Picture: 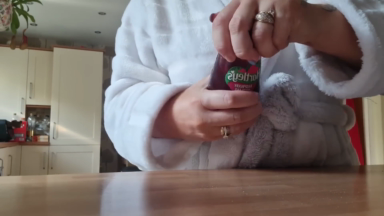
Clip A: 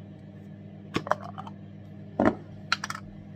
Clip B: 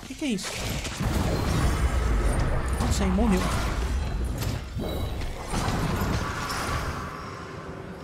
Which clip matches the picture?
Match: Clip A